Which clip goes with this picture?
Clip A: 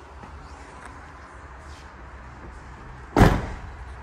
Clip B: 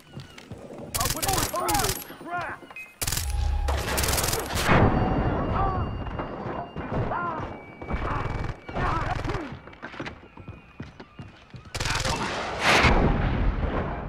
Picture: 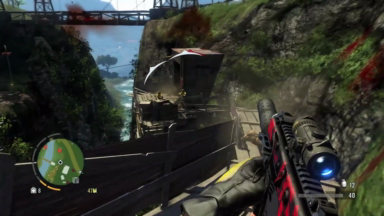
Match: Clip B